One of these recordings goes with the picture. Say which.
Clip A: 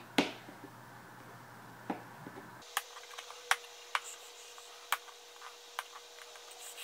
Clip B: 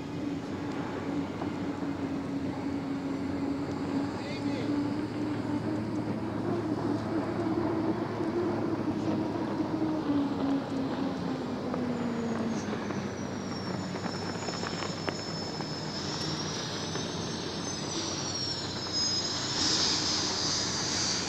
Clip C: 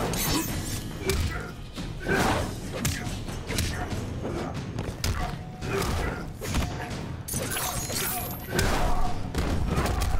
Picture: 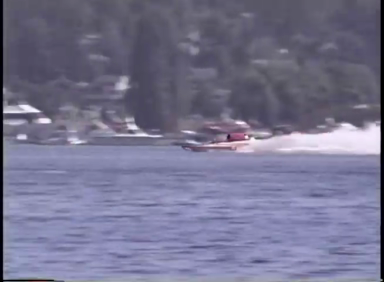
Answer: B